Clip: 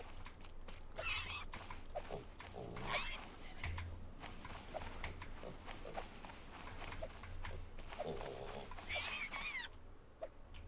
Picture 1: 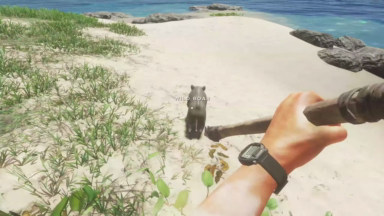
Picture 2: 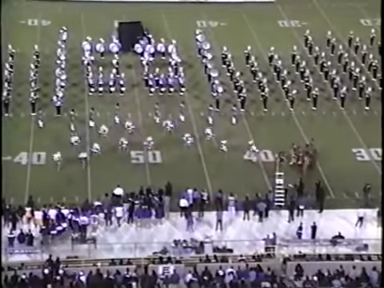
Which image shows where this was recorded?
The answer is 1